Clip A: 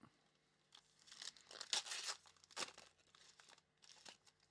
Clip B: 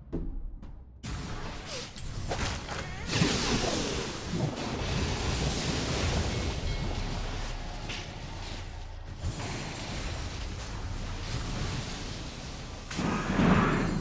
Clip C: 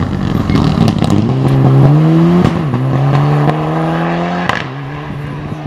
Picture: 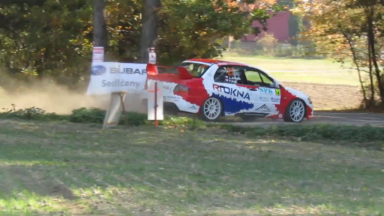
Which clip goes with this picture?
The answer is C